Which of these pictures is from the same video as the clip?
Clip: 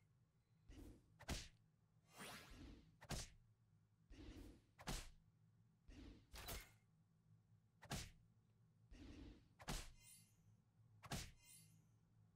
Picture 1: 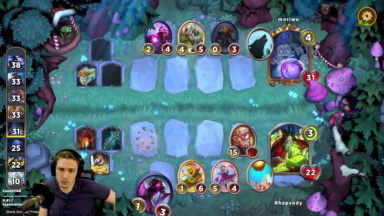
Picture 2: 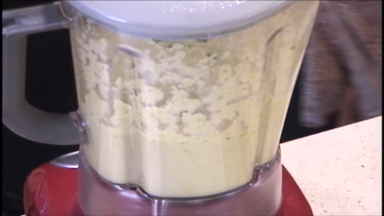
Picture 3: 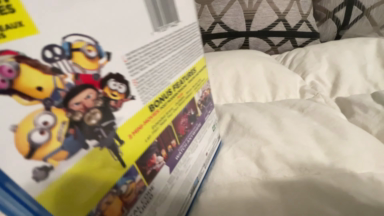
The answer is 1